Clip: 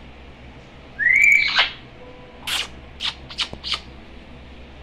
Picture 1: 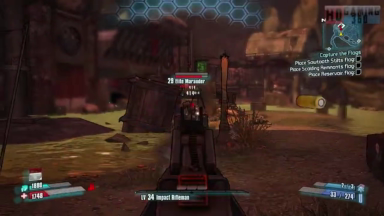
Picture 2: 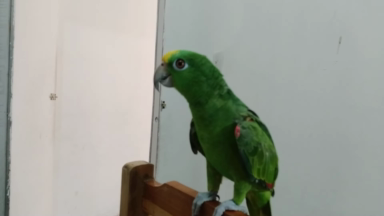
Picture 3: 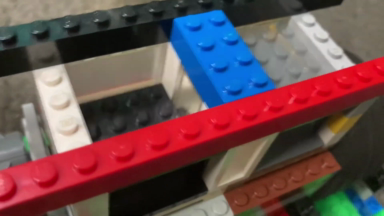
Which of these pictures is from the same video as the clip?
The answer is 2